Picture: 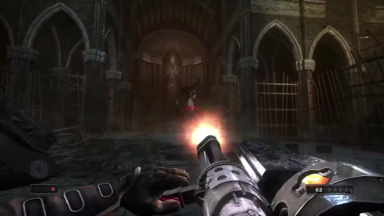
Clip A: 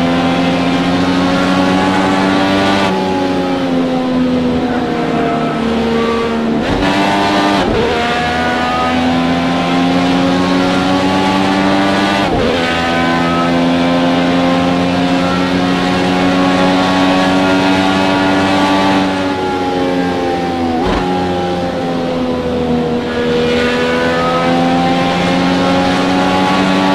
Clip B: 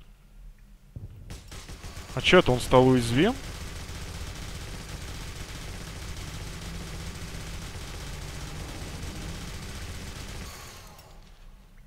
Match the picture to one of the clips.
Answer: B